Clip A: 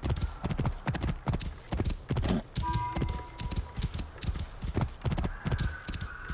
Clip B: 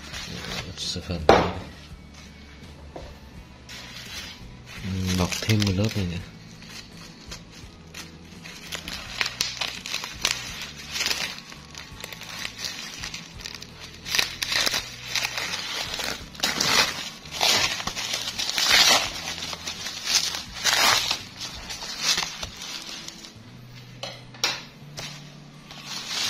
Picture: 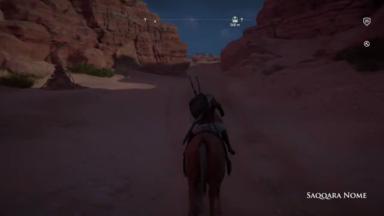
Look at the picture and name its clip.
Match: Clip A